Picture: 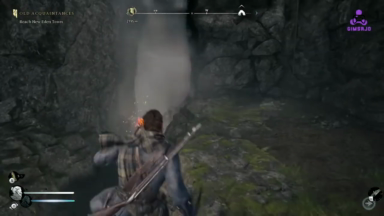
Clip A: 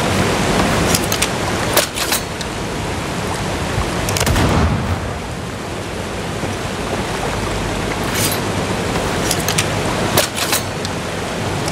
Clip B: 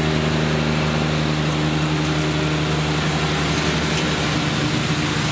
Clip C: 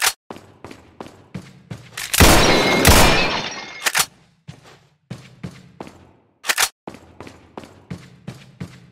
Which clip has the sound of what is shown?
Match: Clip A